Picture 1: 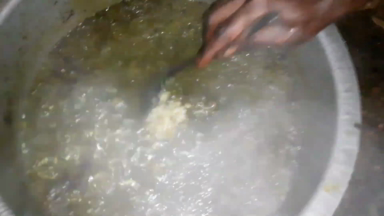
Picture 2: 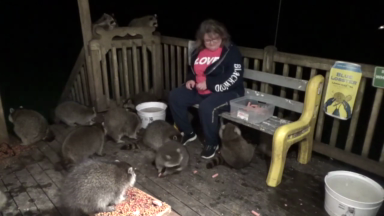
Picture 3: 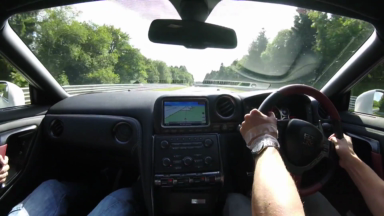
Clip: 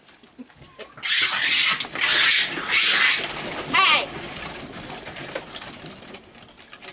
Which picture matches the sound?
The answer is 2